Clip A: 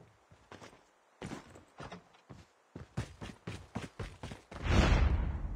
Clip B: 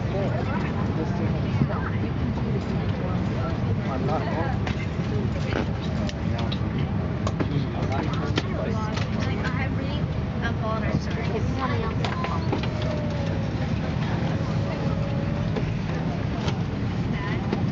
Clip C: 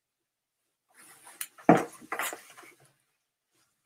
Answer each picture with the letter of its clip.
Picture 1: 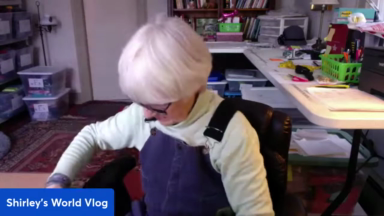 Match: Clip C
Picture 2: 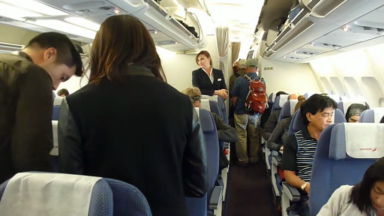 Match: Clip B